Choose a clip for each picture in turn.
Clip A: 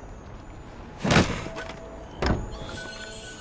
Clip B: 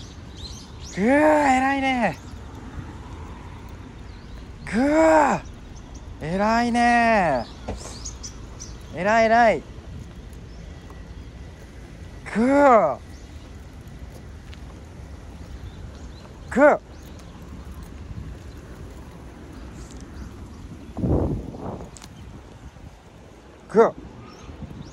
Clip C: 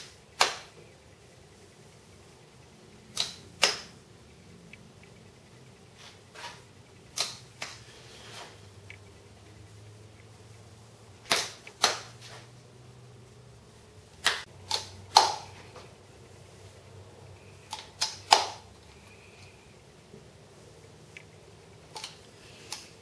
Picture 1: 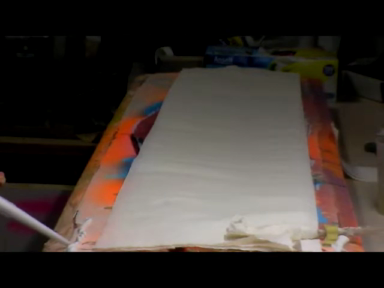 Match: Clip C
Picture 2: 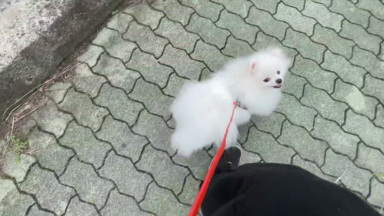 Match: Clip B